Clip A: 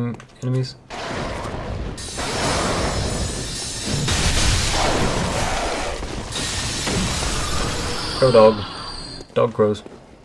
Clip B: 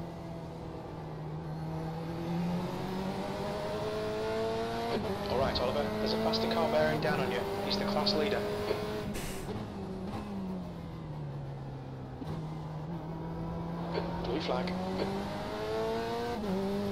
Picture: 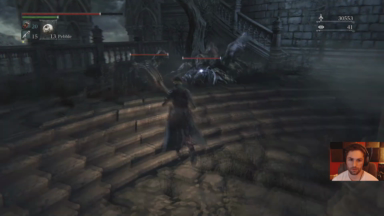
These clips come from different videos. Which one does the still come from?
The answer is A